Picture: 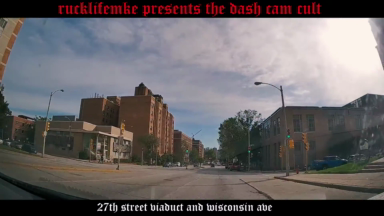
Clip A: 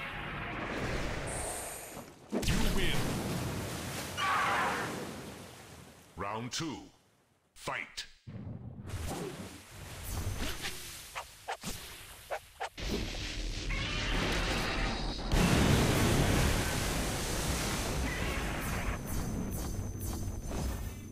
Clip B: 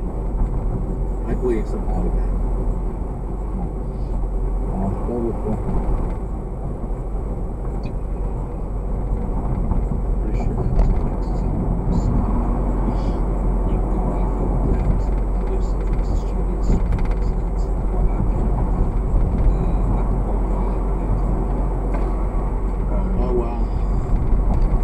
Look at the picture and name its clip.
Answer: B